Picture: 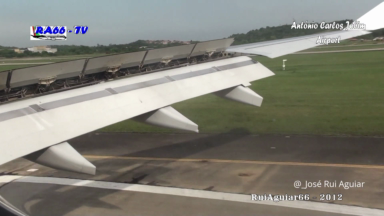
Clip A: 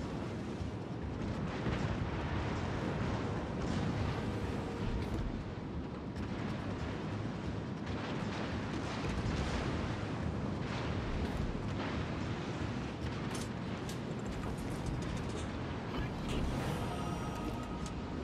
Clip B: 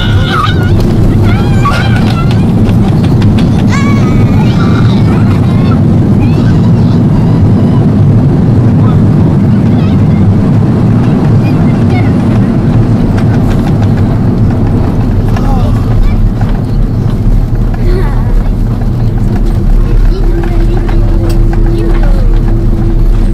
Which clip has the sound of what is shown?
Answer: B